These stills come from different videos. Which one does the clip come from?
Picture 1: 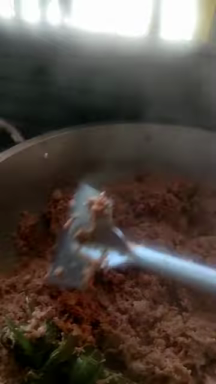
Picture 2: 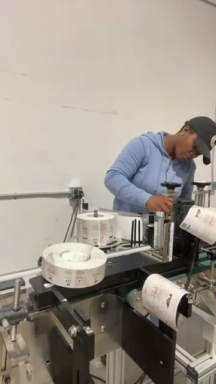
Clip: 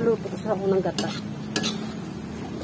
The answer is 1